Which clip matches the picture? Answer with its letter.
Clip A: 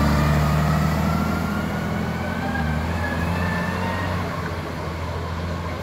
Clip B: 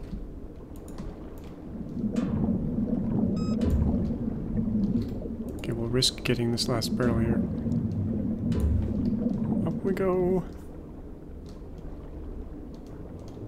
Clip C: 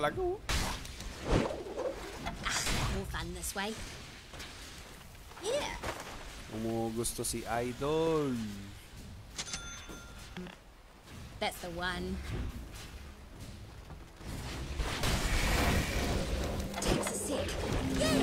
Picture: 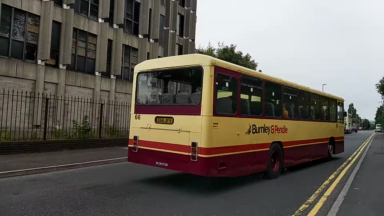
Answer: A